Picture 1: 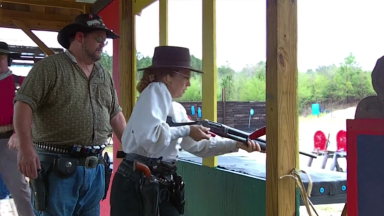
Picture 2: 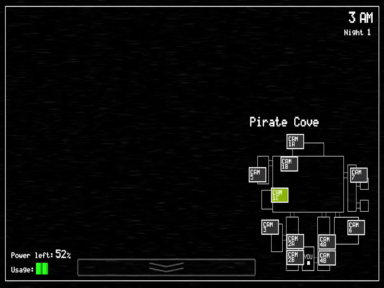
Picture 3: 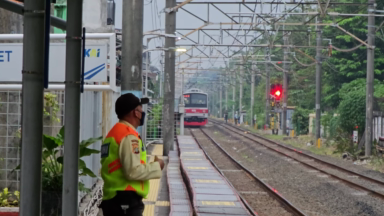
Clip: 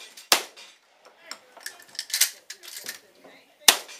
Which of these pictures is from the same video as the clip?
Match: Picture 1